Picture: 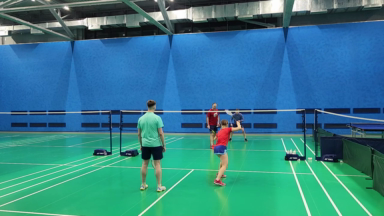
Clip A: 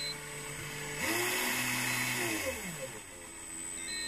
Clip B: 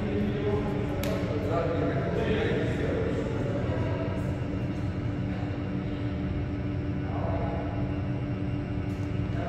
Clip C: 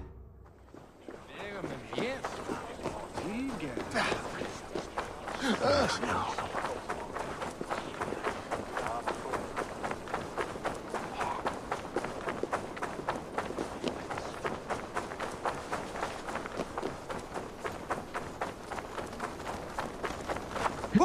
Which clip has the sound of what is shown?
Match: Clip B